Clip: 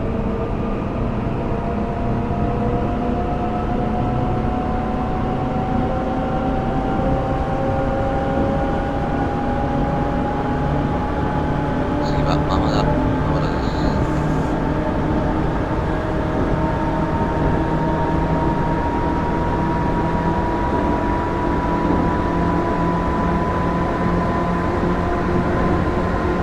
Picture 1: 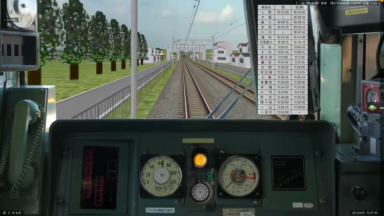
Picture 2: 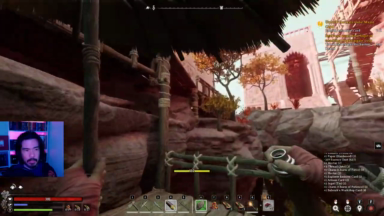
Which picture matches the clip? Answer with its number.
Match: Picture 1